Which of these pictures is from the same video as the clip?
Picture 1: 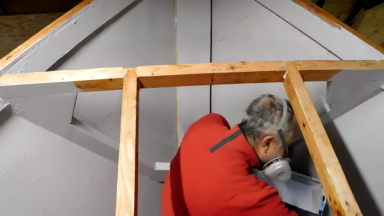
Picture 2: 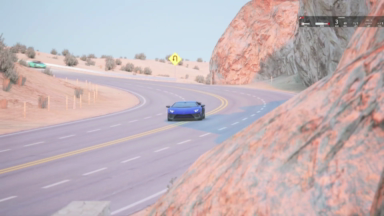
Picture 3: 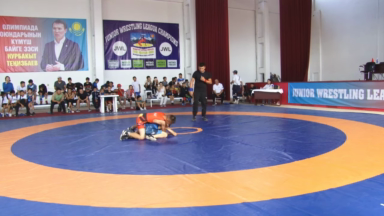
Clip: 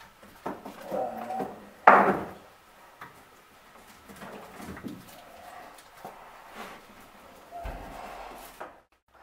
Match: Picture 1